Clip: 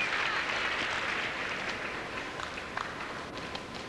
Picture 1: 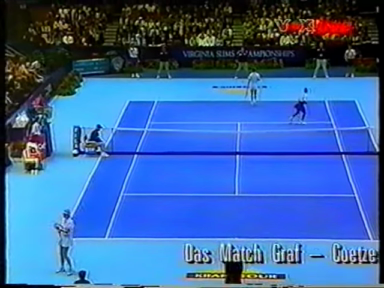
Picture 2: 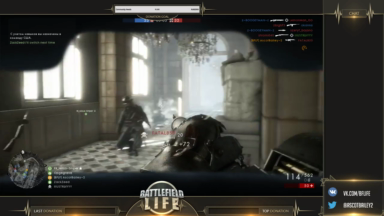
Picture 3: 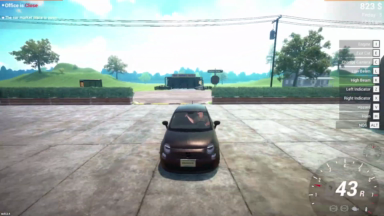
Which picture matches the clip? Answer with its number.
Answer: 1